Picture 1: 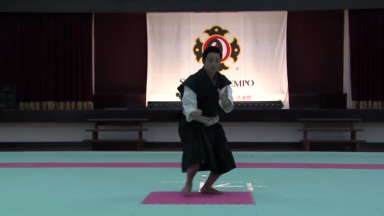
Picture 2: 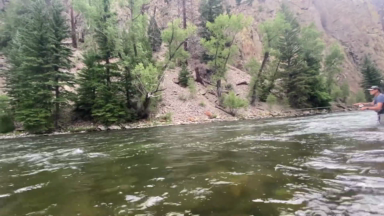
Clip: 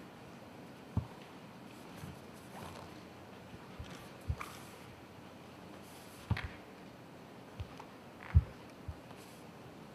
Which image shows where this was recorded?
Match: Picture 1